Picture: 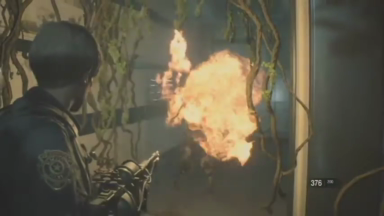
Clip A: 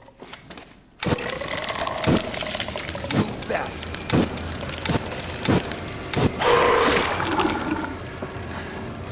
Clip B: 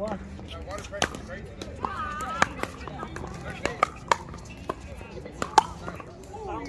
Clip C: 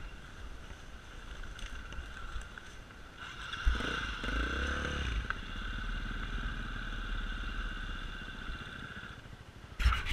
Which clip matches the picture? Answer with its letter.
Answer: A